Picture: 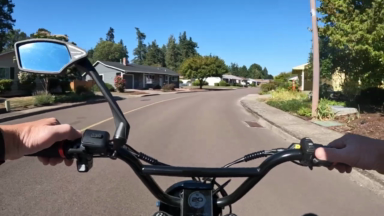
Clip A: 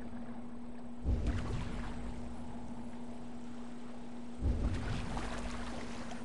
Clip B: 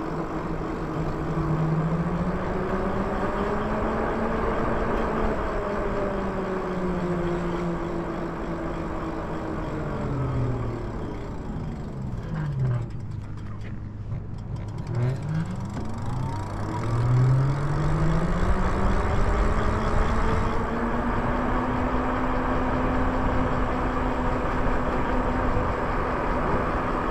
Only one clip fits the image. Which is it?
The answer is B